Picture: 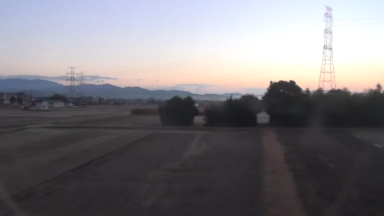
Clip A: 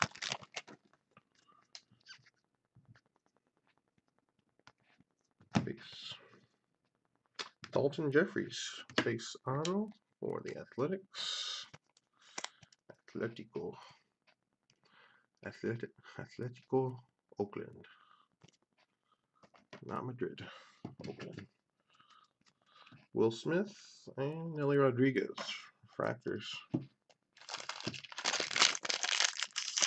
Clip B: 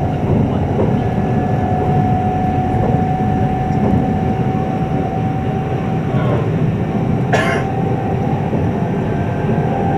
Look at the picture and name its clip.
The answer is B